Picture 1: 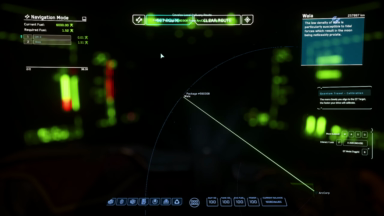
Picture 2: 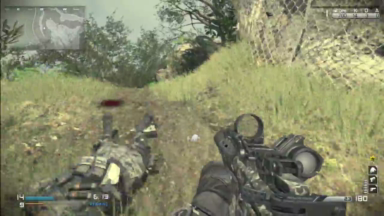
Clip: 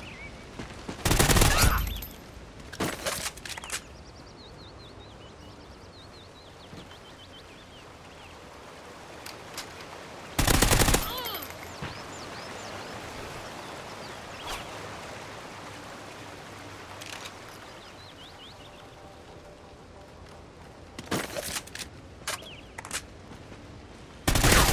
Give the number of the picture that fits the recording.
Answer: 2